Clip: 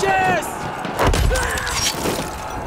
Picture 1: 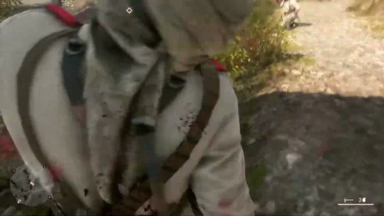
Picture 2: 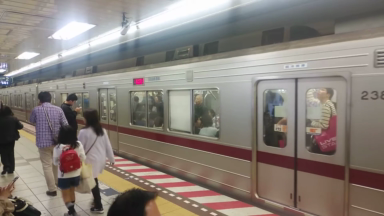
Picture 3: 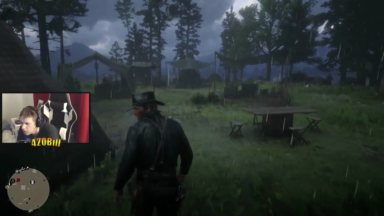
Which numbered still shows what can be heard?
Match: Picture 1